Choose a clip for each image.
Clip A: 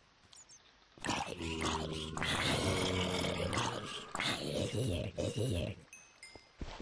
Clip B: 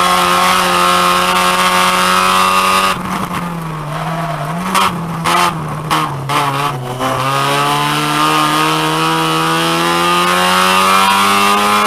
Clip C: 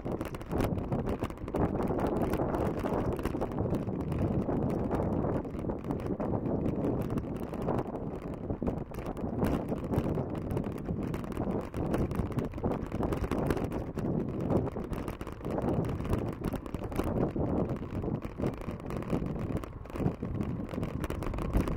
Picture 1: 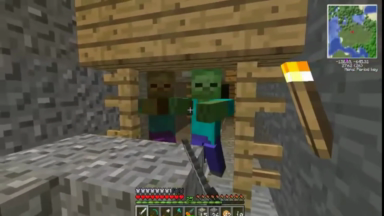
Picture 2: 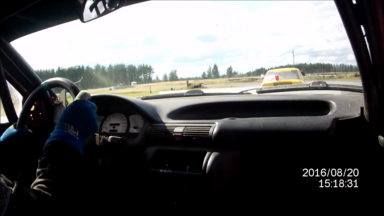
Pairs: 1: A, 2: B